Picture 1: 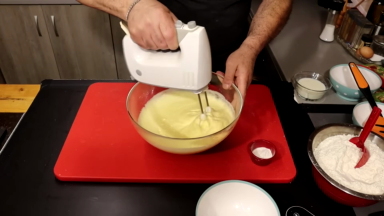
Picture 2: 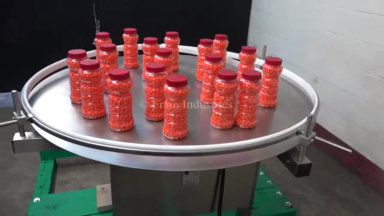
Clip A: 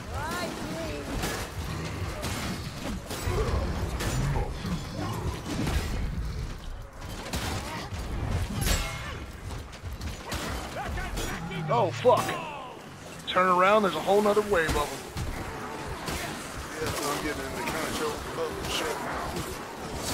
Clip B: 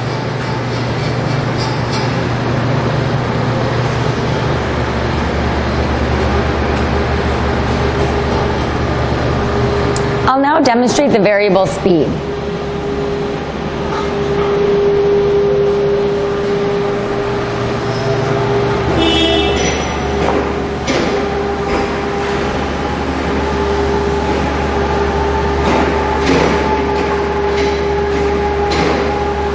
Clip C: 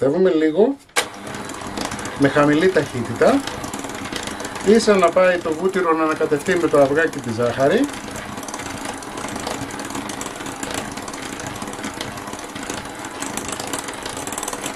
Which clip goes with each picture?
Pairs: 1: C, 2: B